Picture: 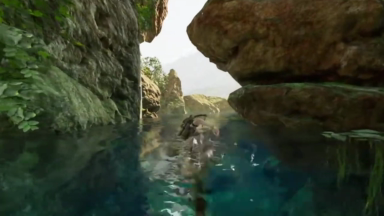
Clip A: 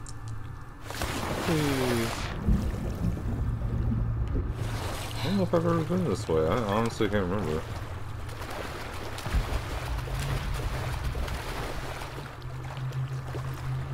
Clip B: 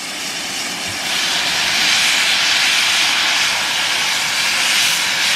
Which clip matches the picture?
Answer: A